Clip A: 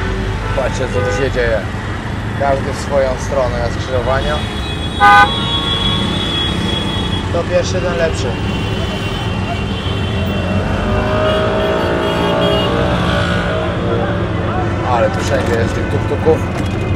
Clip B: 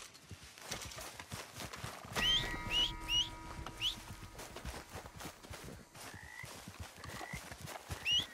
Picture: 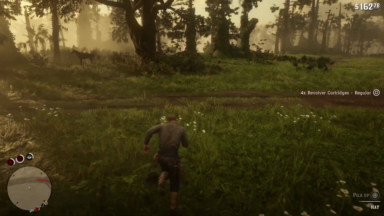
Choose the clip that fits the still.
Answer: B